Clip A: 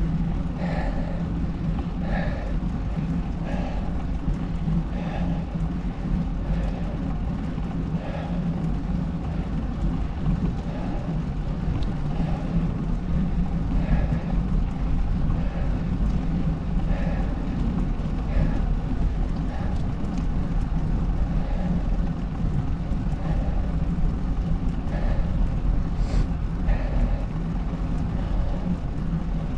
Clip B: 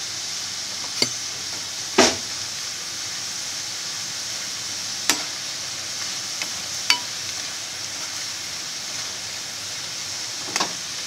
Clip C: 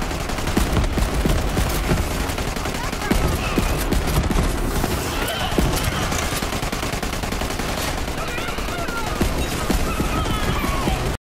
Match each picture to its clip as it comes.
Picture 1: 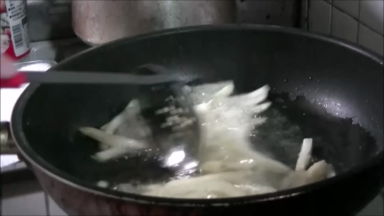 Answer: B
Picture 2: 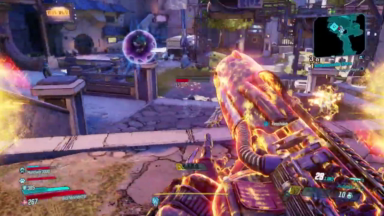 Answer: C